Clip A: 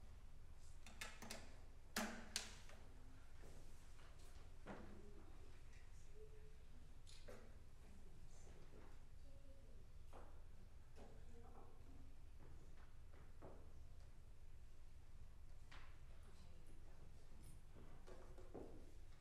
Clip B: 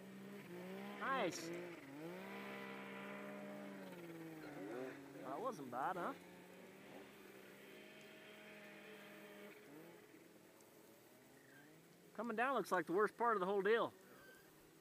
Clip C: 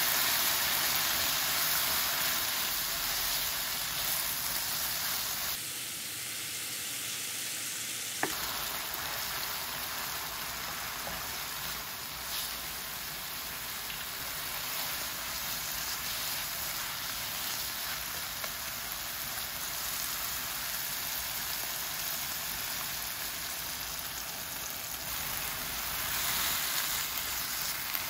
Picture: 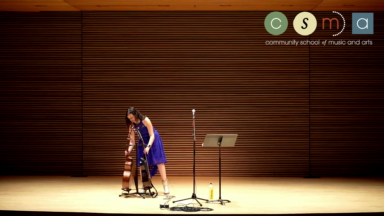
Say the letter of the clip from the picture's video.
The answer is A